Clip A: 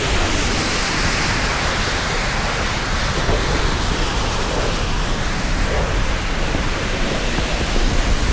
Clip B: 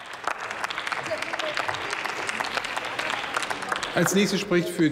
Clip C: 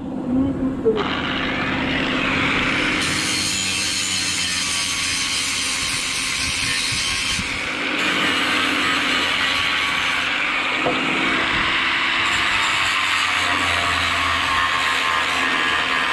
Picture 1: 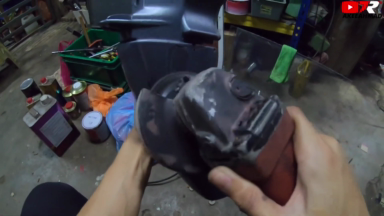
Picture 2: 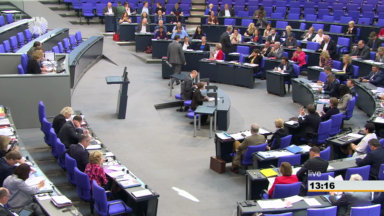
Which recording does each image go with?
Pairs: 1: C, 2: B